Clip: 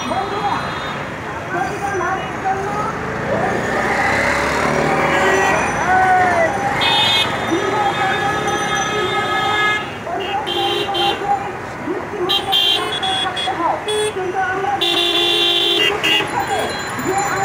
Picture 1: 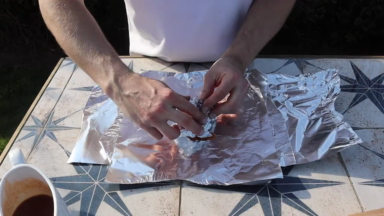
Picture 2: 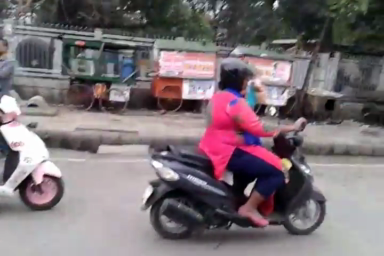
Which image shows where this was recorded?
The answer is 2